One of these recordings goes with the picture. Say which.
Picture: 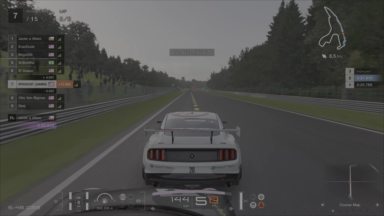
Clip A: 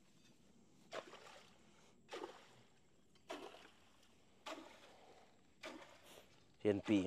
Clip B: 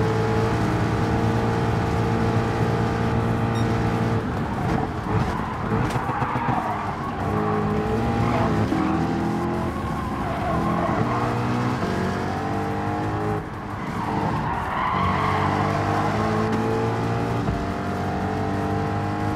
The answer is B